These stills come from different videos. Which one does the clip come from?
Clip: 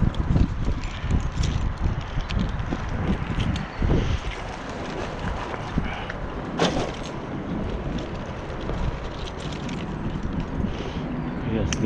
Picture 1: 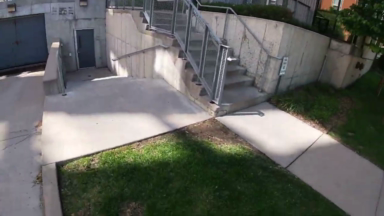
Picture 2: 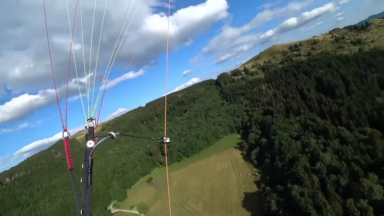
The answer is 1